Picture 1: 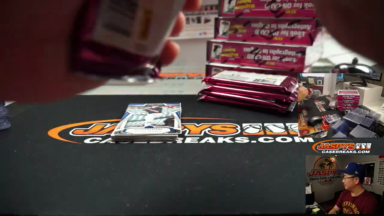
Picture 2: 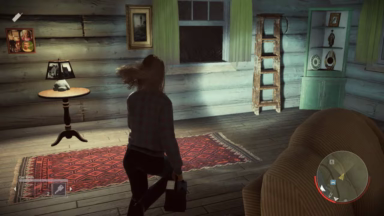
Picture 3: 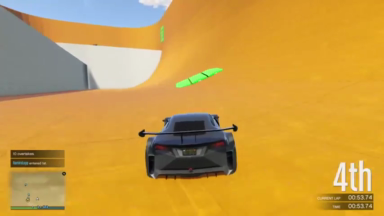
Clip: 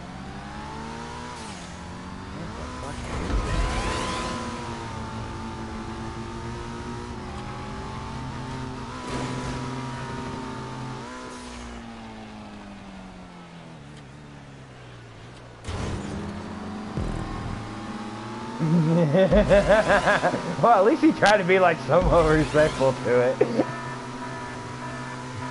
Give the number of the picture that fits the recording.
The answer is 3